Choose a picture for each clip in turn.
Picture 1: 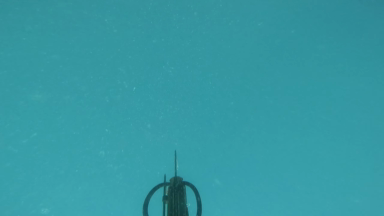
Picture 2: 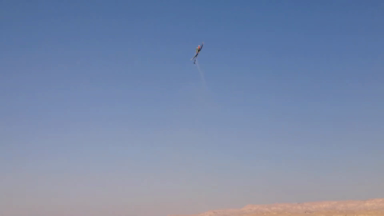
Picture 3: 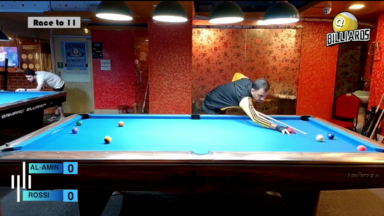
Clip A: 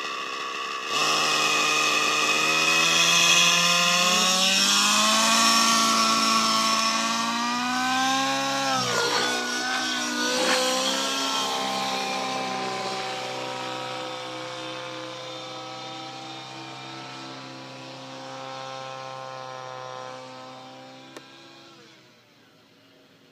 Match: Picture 2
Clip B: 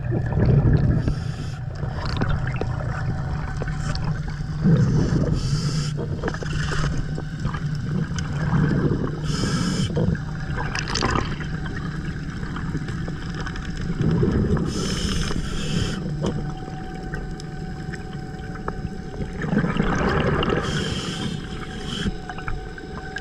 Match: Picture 1